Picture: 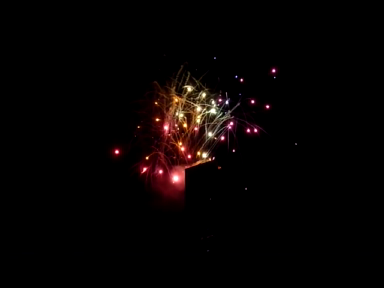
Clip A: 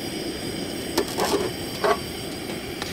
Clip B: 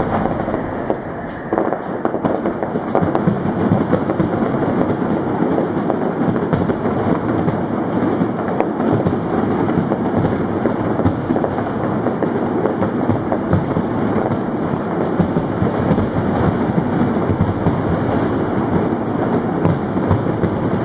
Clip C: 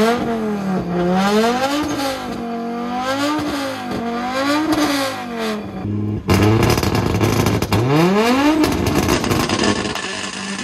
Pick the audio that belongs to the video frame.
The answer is B